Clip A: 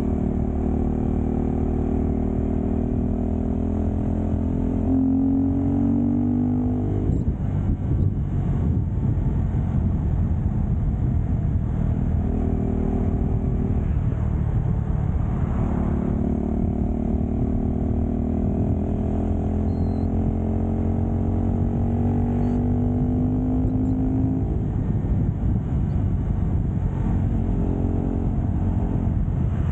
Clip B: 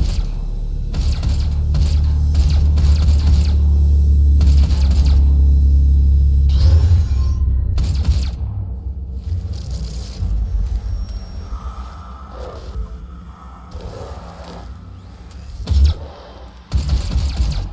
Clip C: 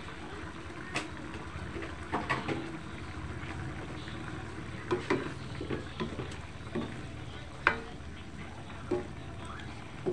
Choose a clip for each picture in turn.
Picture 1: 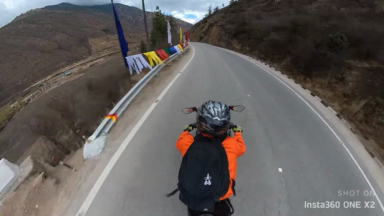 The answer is A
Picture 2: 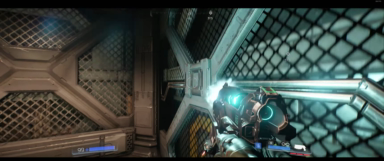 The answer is B